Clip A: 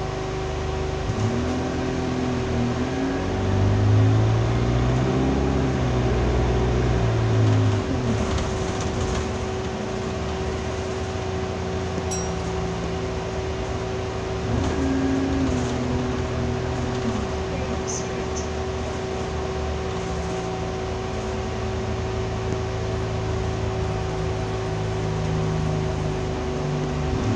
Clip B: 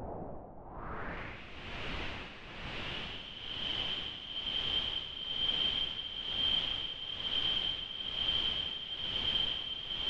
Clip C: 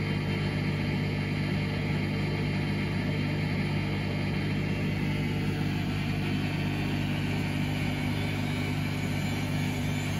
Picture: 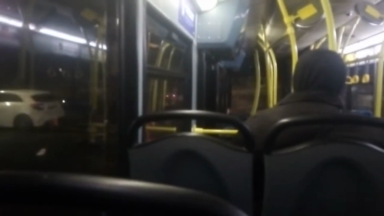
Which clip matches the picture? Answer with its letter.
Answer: A